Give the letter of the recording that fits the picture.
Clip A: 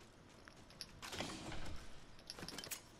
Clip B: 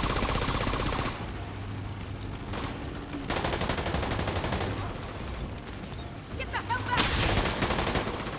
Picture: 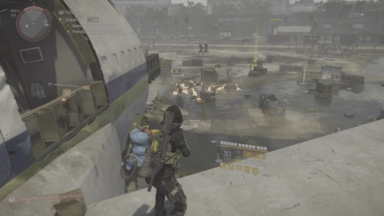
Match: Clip B